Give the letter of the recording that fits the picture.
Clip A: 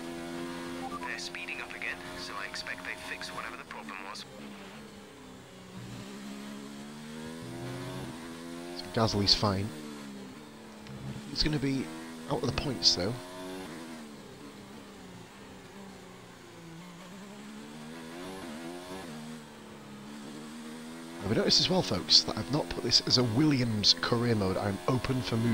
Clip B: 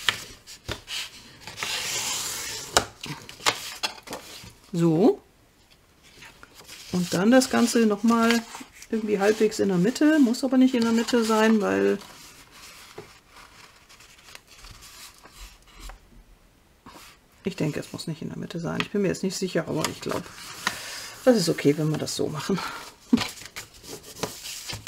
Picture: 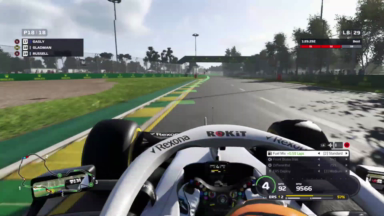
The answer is A